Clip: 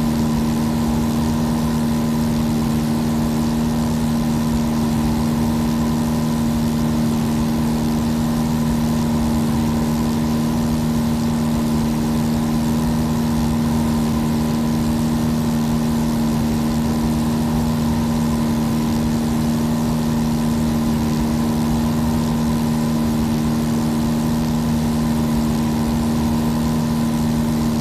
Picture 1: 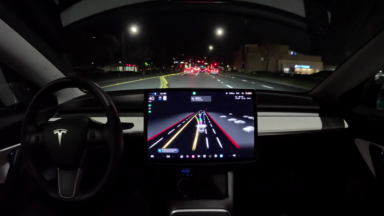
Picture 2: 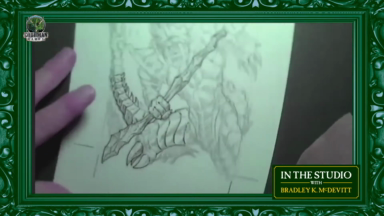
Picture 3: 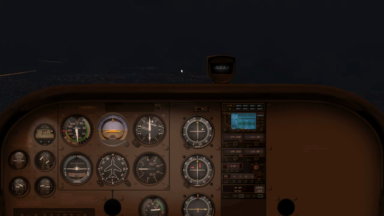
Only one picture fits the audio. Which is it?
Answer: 3